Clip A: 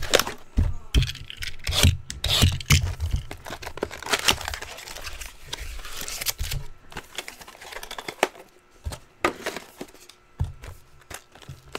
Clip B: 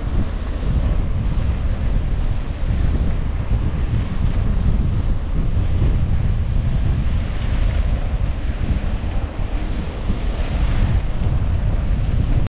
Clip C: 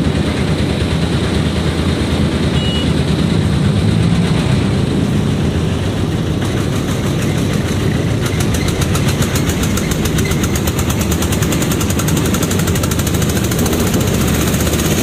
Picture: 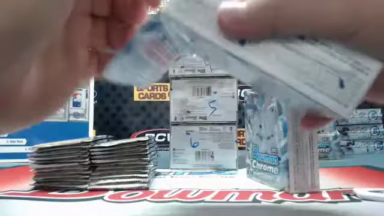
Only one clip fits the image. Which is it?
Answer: A